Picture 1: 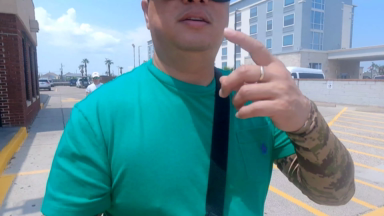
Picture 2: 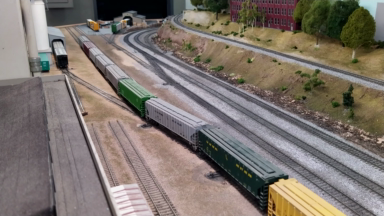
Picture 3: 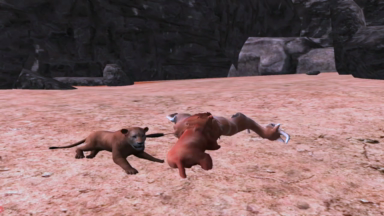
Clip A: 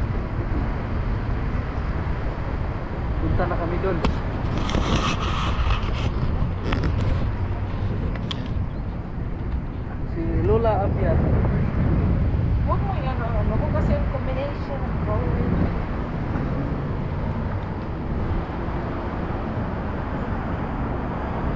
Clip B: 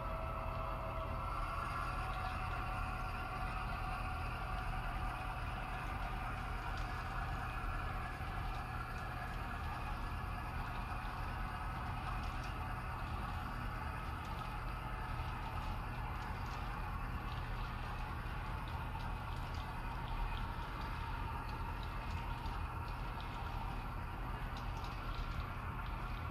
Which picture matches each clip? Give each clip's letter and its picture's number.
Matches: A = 1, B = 2